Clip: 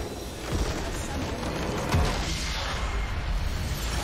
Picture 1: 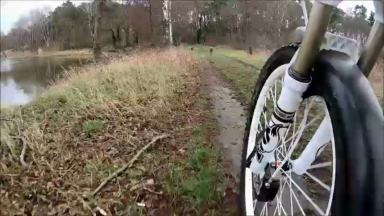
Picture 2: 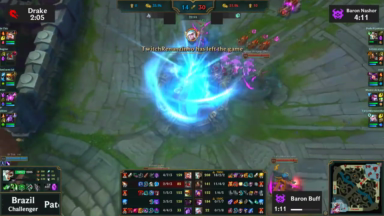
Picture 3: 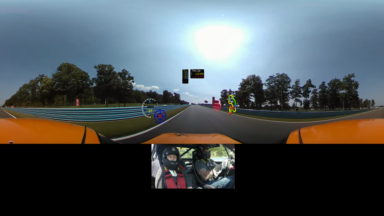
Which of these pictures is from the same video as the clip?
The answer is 2